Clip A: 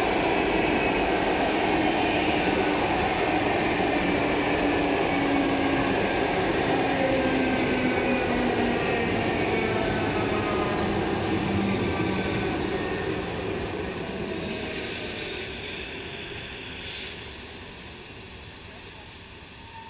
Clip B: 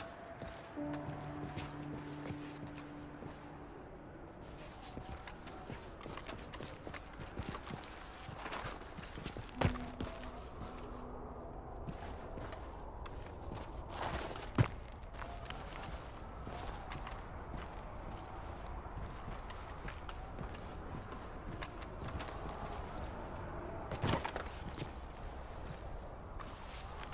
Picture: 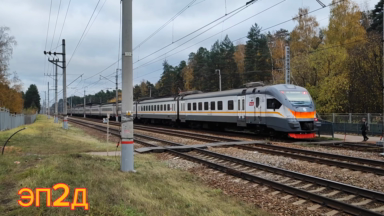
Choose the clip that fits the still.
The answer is A